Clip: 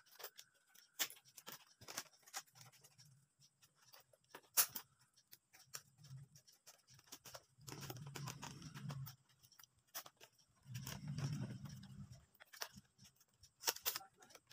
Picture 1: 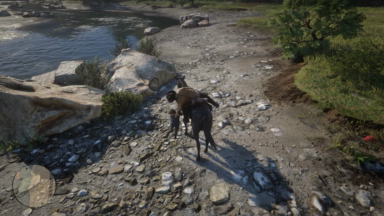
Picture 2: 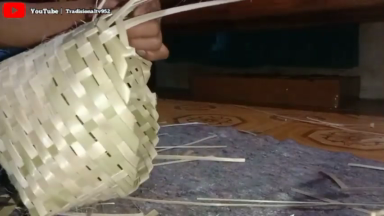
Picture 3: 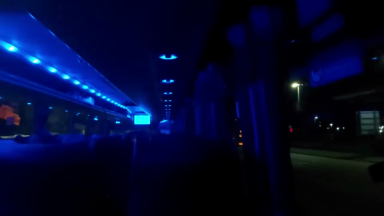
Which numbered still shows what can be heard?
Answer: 2